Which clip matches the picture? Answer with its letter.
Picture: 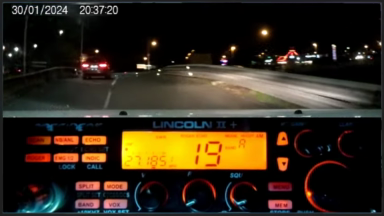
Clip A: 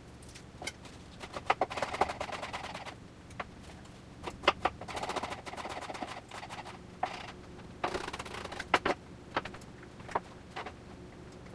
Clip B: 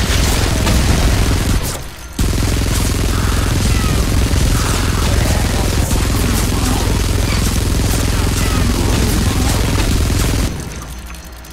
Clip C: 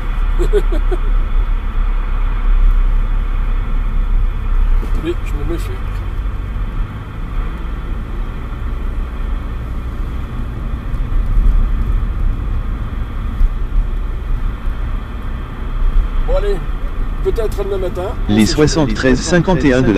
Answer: C